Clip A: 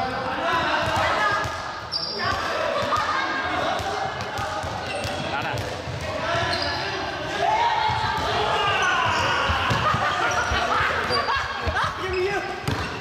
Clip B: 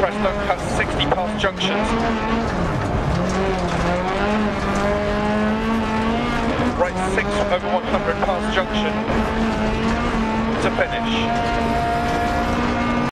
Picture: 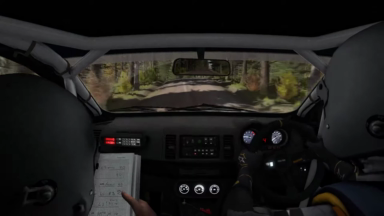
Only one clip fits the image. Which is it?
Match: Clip B